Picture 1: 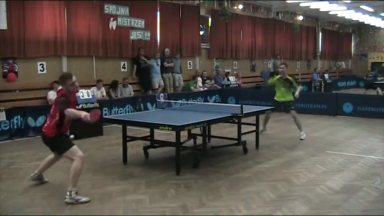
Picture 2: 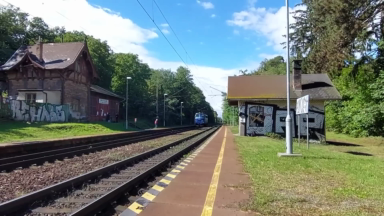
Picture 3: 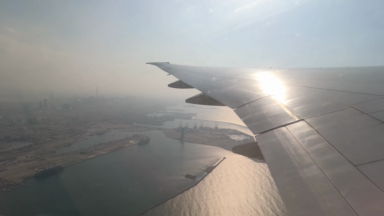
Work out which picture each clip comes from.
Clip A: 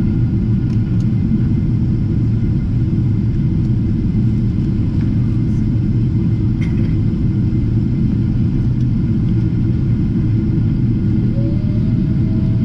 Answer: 3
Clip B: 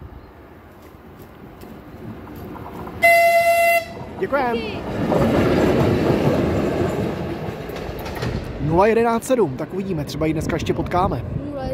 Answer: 2